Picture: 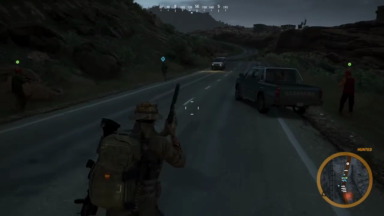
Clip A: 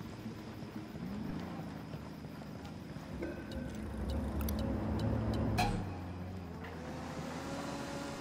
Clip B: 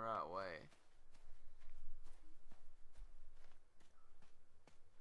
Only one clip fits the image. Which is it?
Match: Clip A